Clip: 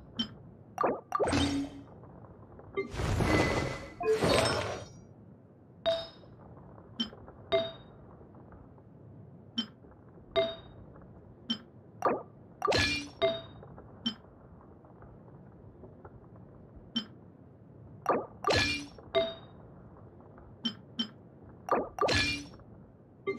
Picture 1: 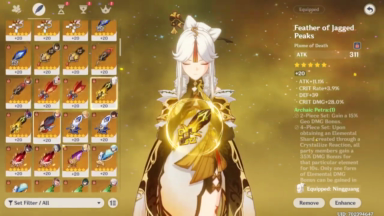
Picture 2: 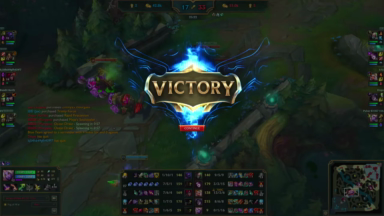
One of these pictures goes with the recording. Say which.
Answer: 1